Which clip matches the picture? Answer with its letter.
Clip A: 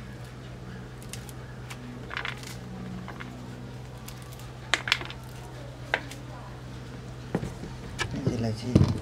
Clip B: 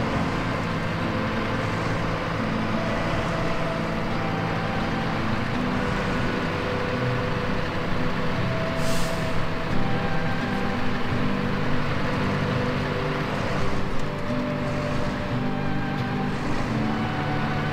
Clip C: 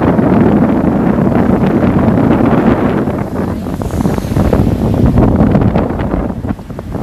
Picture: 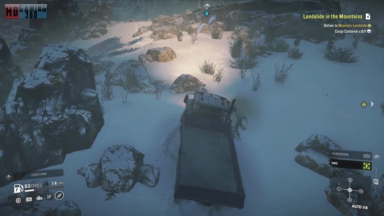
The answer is B